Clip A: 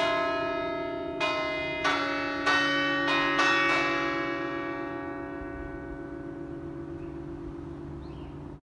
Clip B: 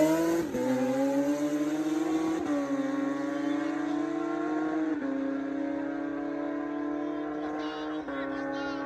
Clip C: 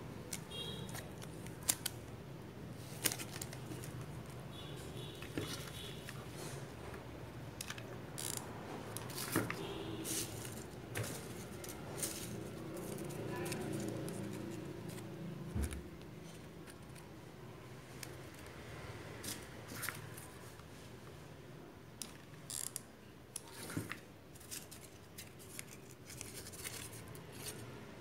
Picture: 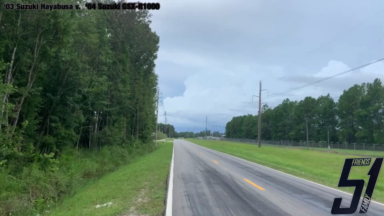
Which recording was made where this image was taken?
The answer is B